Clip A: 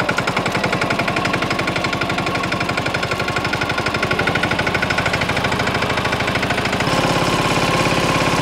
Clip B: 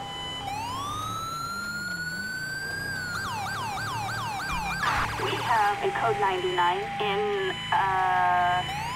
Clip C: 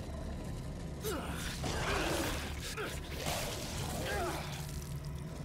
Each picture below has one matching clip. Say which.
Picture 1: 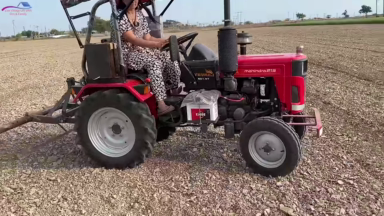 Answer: A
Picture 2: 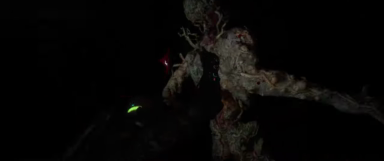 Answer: C